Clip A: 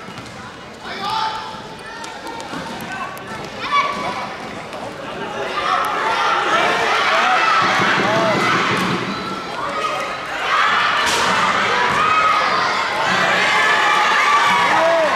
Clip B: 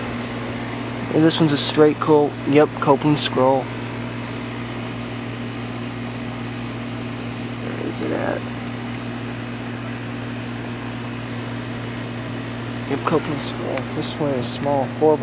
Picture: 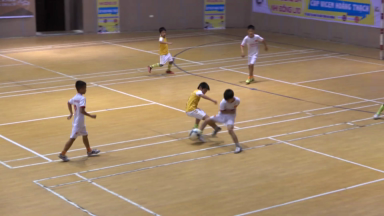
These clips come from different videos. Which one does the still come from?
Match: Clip A